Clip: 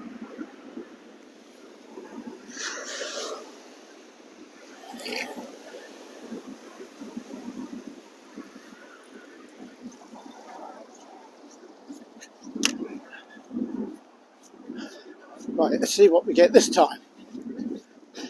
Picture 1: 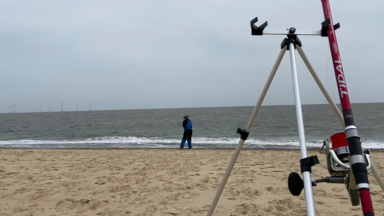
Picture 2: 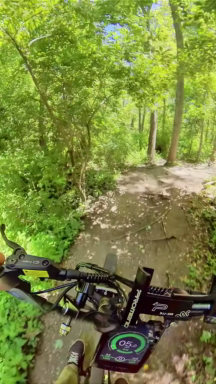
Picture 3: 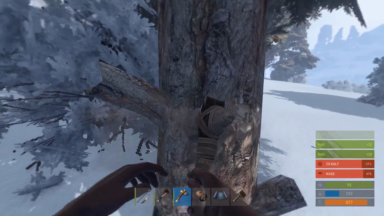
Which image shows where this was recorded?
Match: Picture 1